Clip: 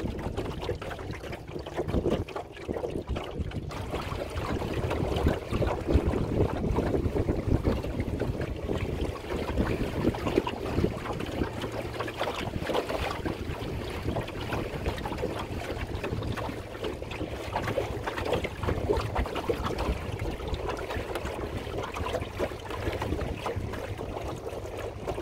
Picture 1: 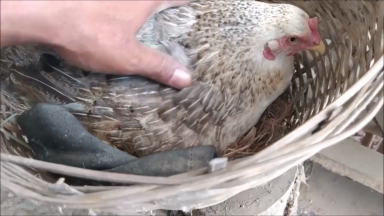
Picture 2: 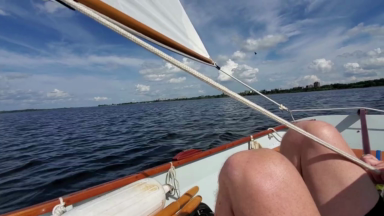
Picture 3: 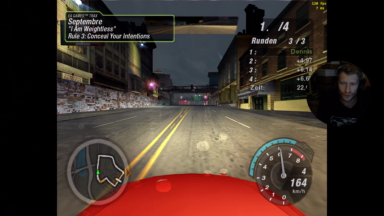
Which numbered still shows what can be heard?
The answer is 2